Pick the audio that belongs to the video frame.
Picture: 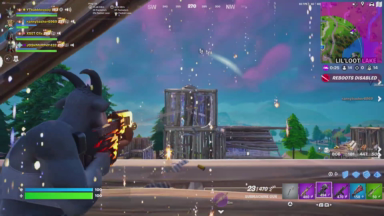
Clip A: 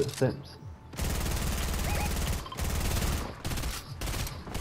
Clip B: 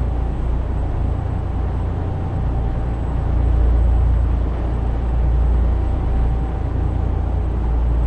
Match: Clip A